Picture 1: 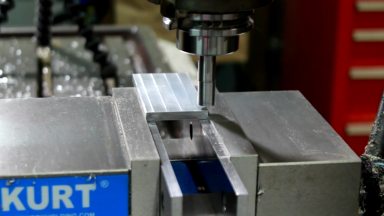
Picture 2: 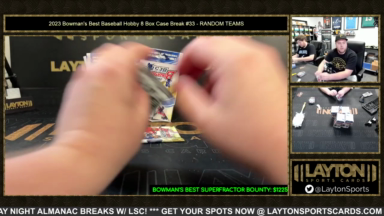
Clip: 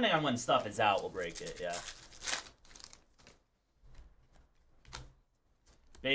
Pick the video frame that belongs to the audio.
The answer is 2